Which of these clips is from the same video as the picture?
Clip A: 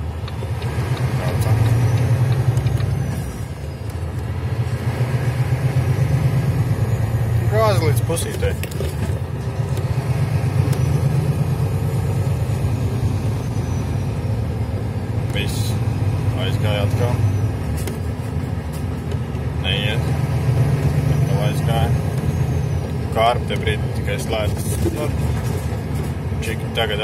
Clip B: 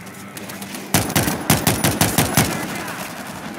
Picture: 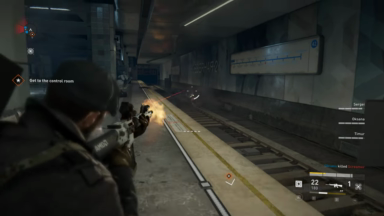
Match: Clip B